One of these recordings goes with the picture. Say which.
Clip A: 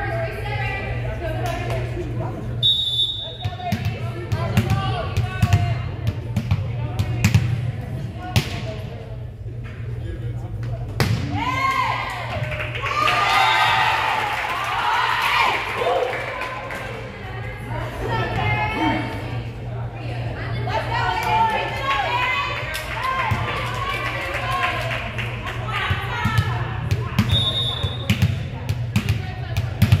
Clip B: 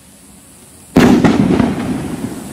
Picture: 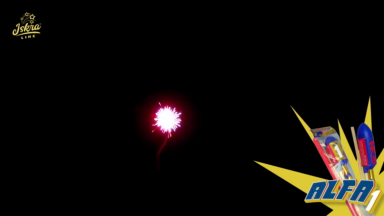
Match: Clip B